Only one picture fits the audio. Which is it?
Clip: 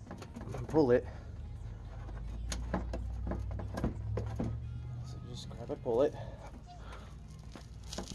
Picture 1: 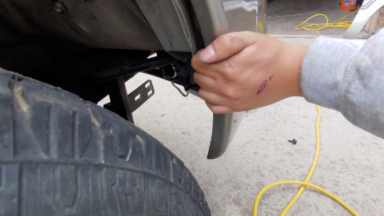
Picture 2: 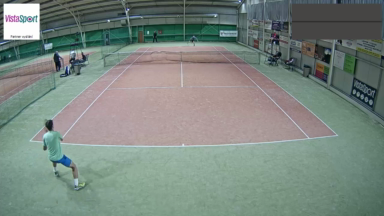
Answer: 1